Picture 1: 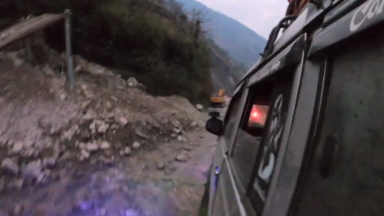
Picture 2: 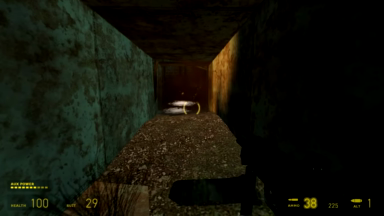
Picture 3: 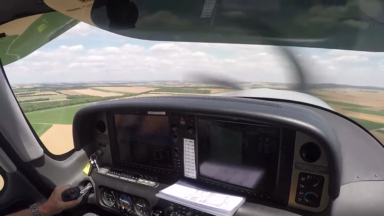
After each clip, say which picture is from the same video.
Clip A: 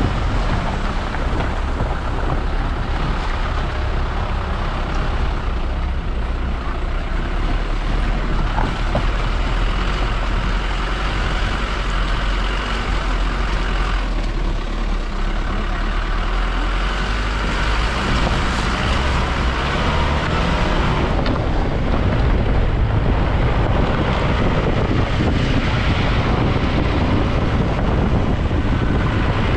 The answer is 1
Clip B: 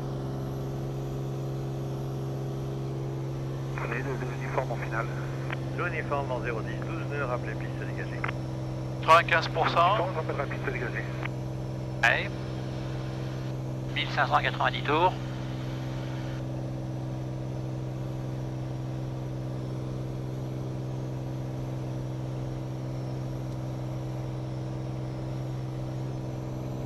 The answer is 3